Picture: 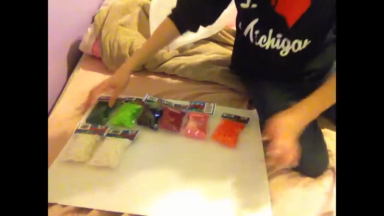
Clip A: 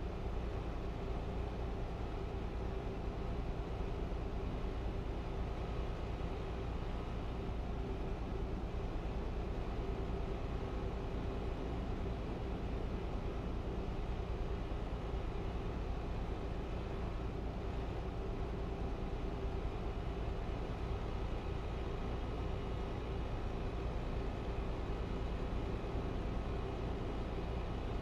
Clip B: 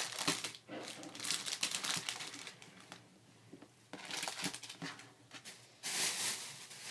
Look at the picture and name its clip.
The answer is B